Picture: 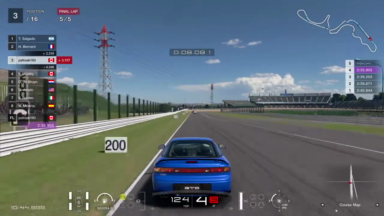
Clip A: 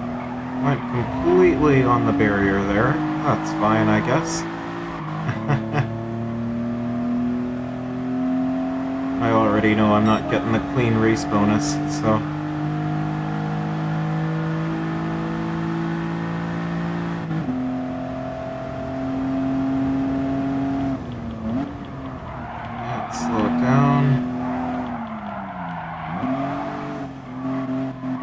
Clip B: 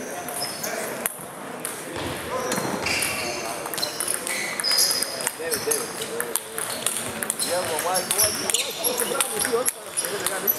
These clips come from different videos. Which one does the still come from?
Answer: A